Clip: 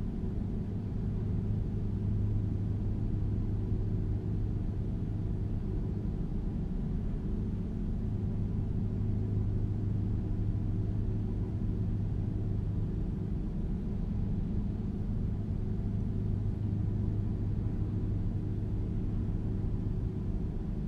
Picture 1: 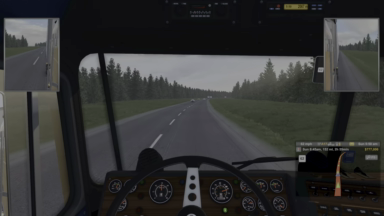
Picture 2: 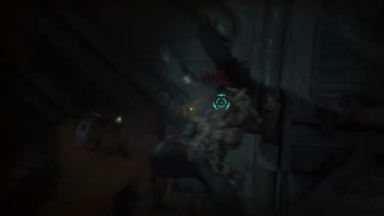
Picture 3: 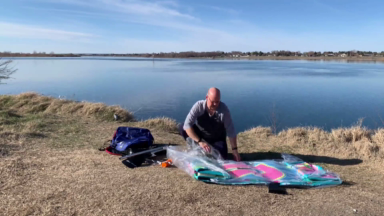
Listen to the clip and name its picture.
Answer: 1